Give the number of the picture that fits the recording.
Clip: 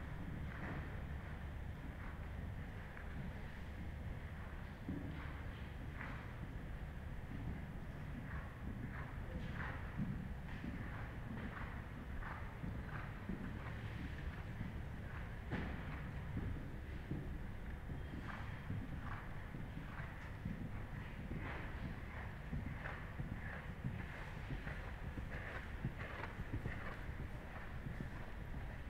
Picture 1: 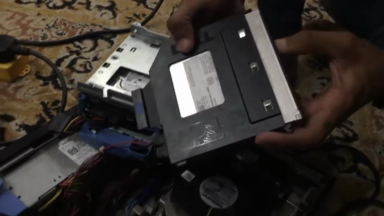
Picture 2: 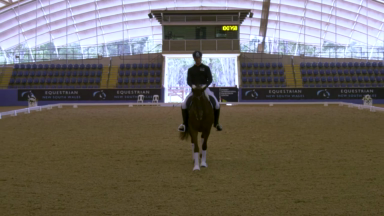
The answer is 2